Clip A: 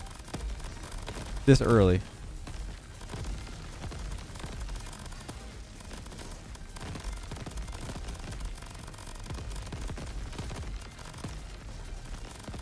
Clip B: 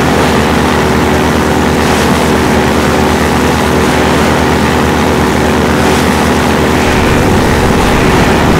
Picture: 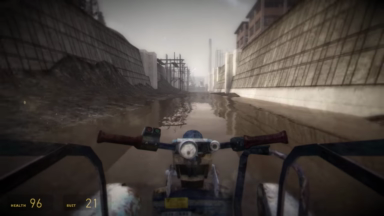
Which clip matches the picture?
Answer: B